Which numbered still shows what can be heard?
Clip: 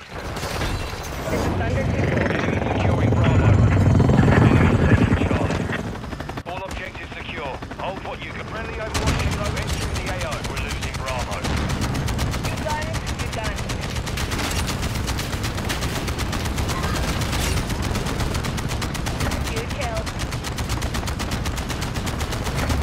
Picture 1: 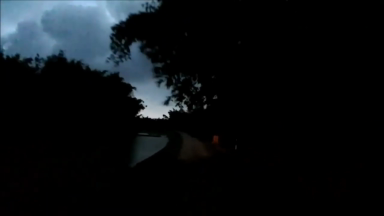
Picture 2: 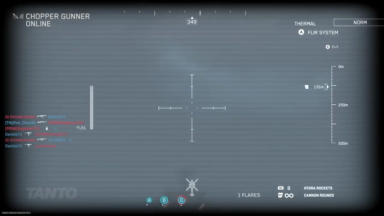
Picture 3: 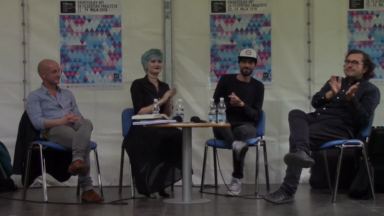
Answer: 2